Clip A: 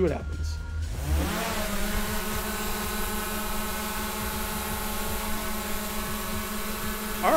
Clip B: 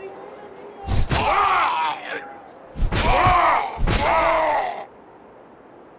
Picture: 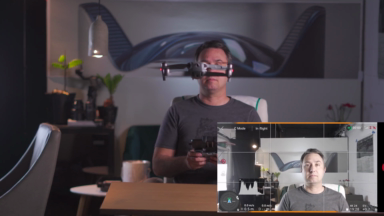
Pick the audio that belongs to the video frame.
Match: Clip A